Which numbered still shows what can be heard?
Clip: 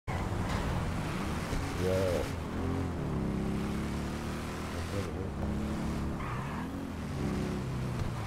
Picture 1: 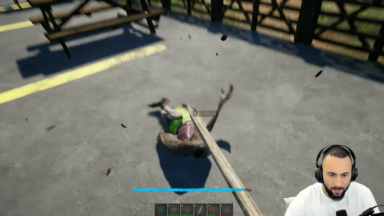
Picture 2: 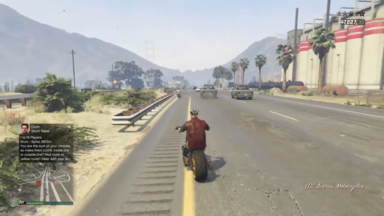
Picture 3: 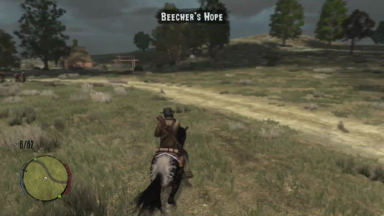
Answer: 2